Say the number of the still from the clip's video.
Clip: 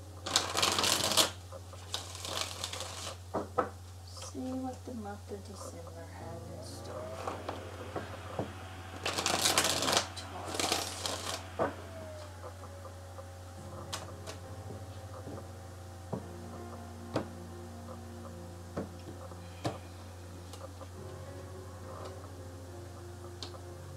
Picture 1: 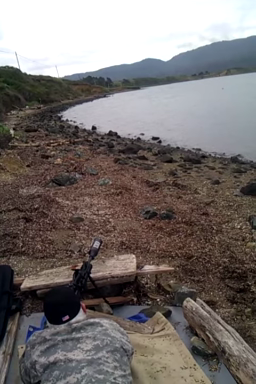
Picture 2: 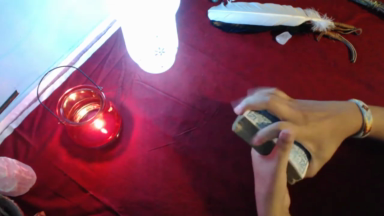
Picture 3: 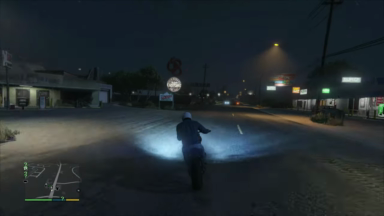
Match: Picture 2